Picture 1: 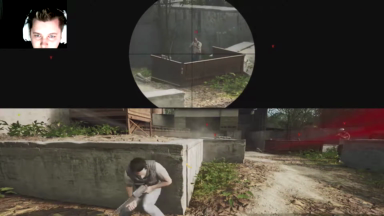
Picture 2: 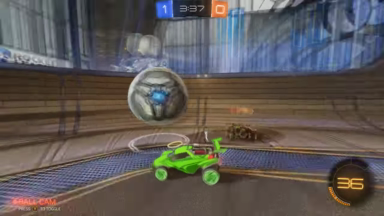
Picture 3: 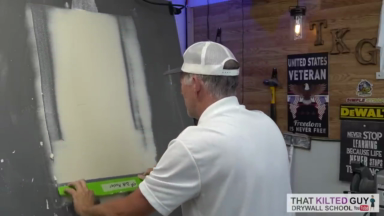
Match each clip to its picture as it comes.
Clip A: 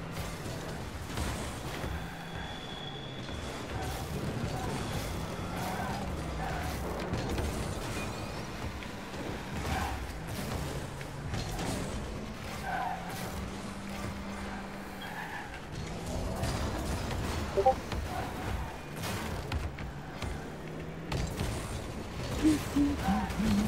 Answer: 2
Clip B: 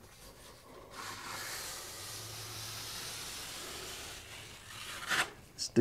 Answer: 3